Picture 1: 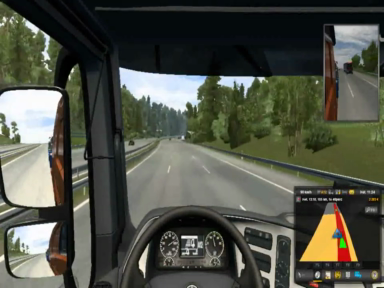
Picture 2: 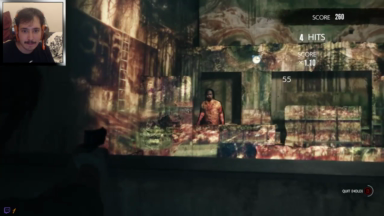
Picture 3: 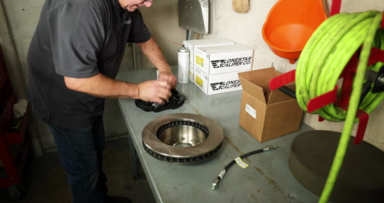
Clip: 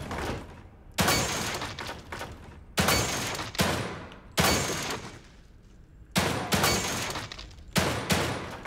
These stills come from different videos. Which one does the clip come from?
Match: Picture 2